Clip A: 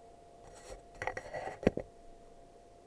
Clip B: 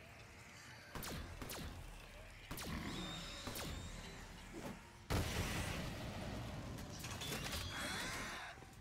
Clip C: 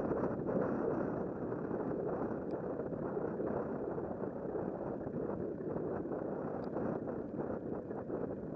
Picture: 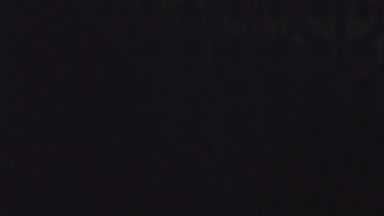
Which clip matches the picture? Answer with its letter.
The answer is A